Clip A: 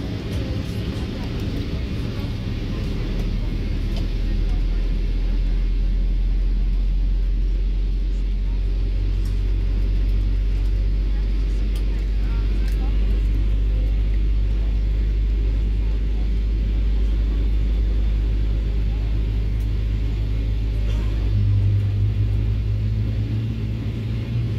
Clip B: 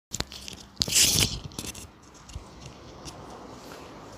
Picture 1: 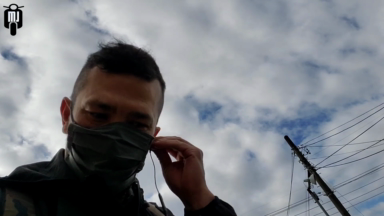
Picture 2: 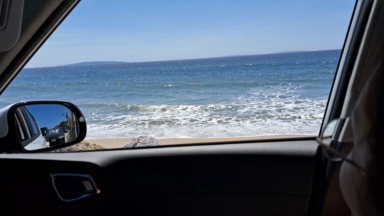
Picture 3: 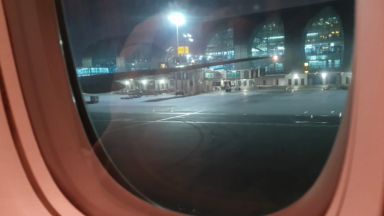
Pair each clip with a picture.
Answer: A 3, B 1